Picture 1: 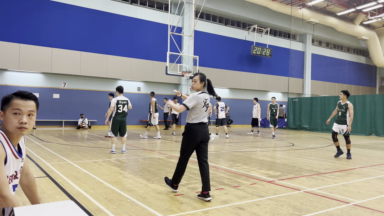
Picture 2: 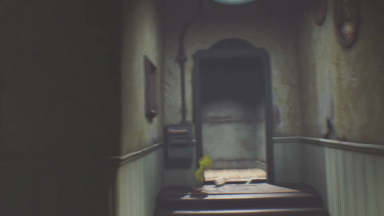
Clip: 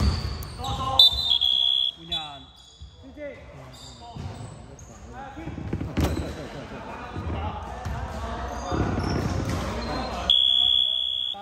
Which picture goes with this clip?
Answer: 1